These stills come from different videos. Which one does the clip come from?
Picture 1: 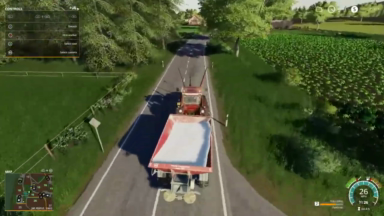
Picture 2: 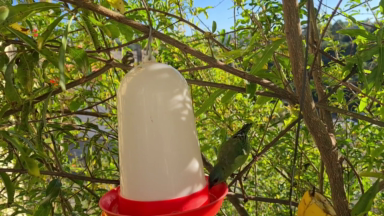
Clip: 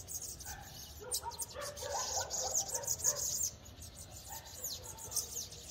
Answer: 2